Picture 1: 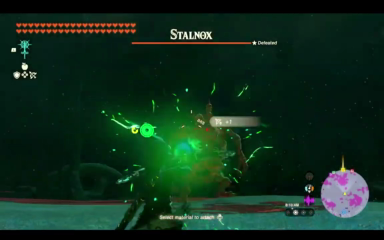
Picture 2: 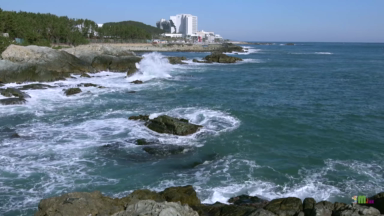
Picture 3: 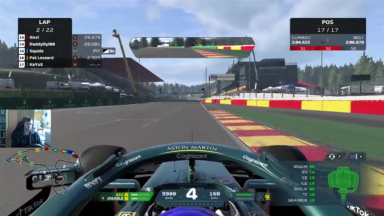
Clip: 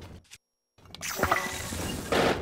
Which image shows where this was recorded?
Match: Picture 1